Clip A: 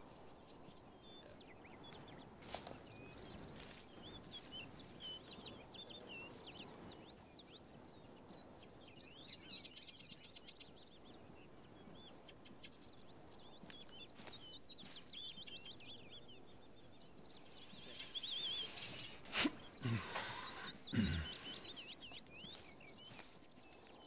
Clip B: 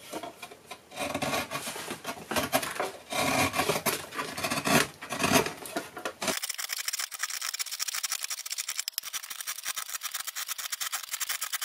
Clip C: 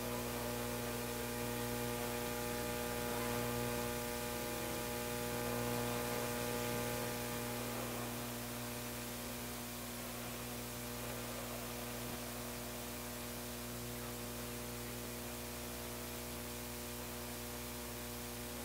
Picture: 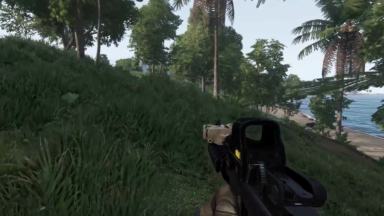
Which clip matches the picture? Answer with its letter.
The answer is A